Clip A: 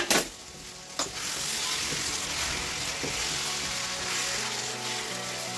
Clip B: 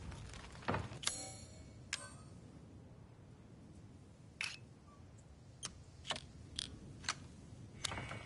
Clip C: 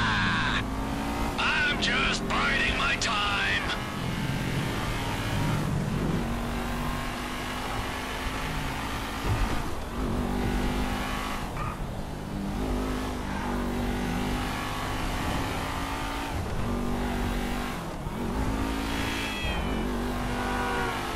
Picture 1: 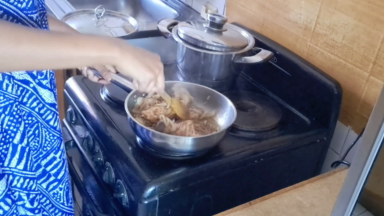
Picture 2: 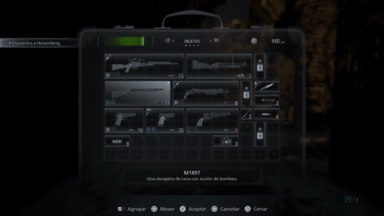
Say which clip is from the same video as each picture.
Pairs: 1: A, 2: B